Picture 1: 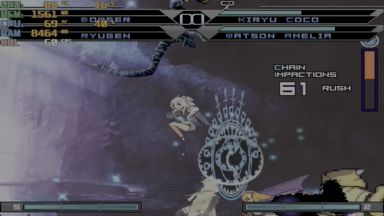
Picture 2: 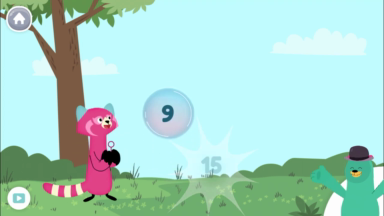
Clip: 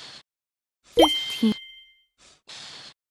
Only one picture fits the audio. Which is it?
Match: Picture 2